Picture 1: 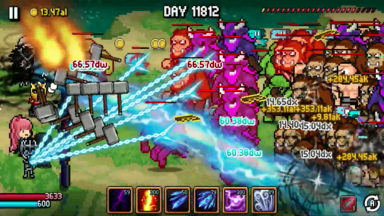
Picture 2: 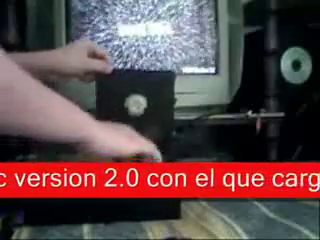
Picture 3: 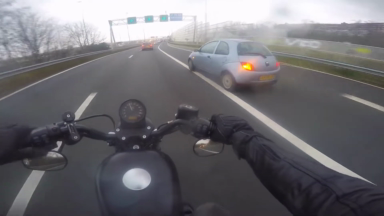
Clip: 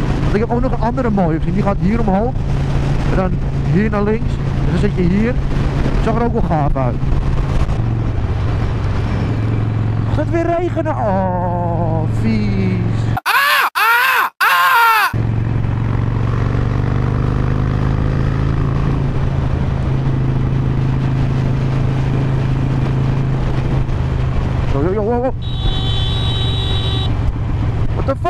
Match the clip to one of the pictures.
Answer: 3